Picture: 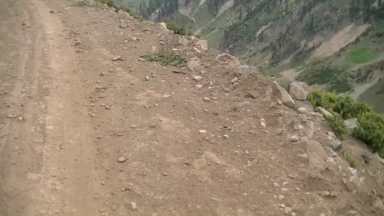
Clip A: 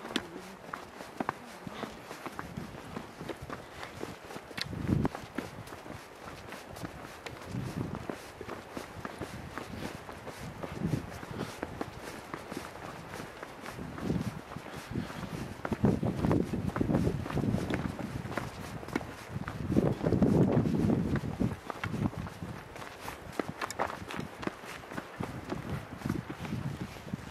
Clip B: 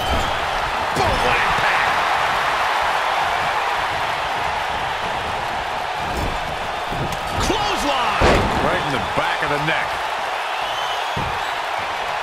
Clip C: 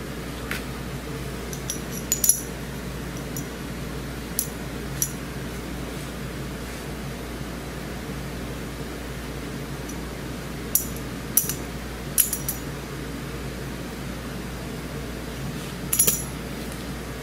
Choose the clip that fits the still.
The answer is A